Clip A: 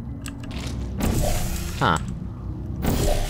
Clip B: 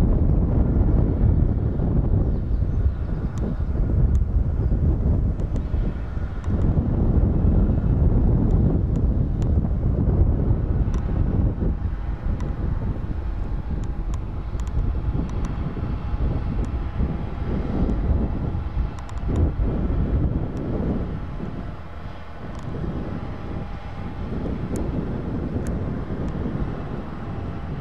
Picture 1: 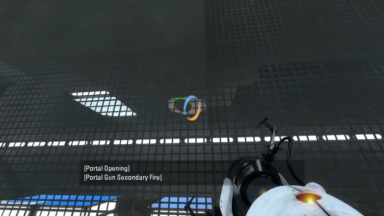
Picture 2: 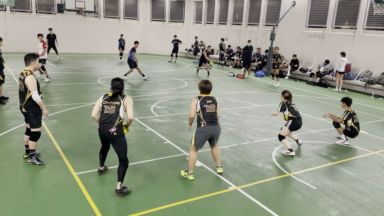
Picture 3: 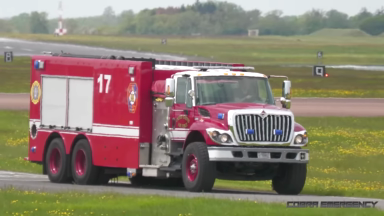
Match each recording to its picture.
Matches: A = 1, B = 3